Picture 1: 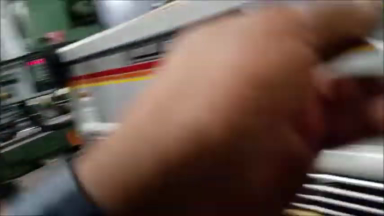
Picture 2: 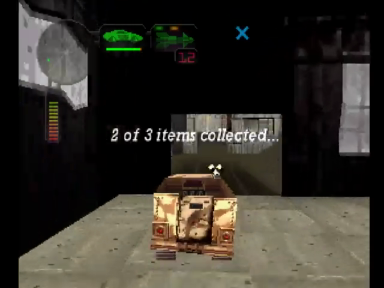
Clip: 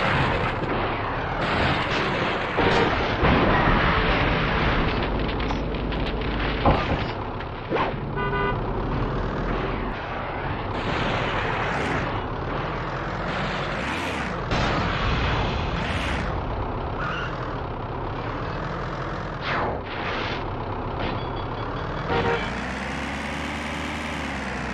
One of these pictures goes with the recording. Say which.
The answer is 2